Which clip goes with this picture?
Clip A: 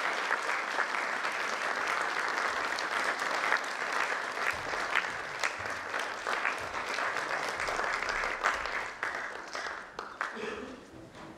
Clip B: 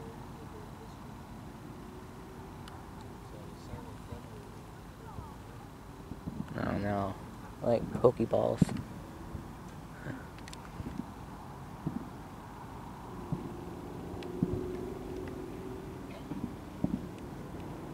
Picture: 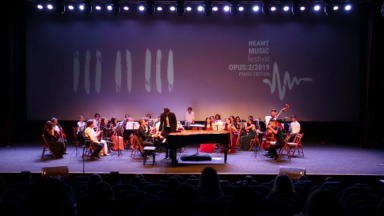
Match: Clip A